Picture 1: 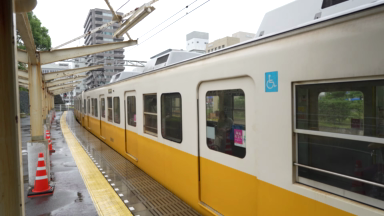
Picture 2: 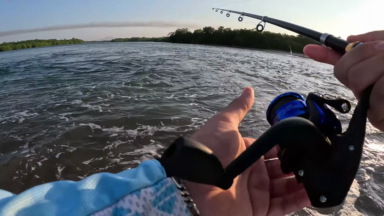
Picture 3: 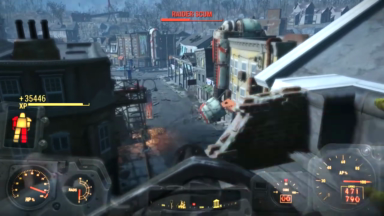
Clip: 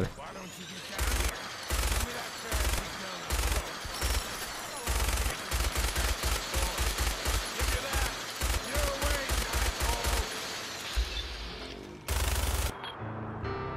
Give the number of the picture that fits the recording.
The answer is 3